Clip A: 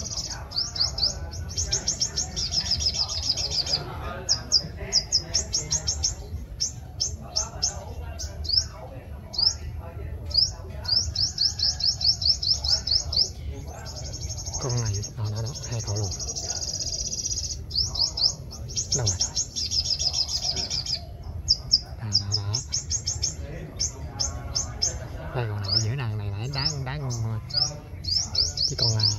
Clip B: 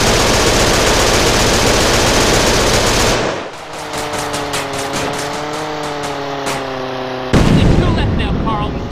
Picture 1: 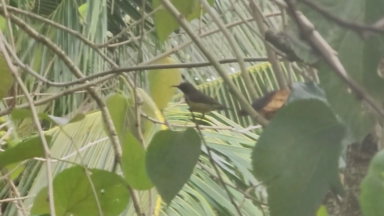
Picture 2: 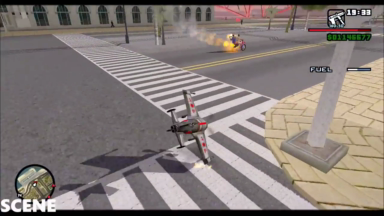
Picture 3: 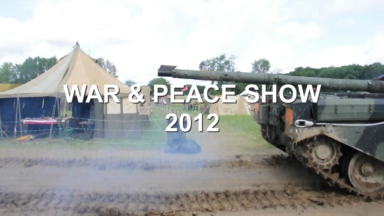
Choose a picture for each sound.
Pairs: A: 1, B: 2